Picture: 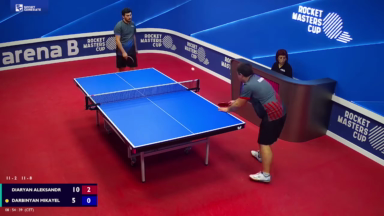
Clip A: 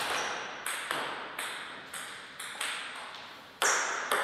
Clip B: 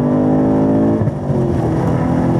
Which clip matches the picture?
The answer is A